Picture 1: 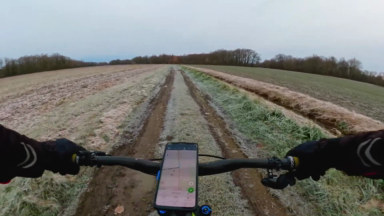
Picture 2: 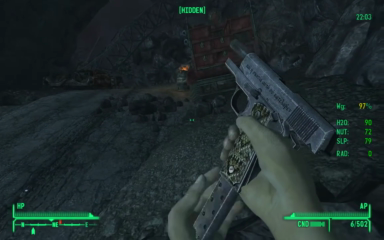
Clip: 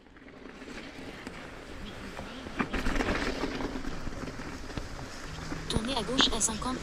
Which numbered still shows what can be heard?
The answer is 1